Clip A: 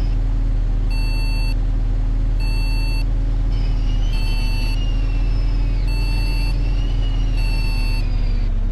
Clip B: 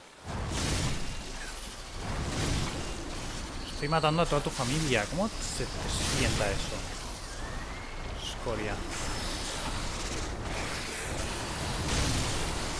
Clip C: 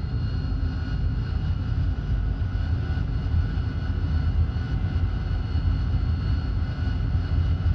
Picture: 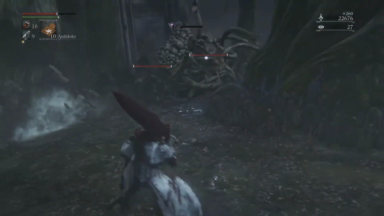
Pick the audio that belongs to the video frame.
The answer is B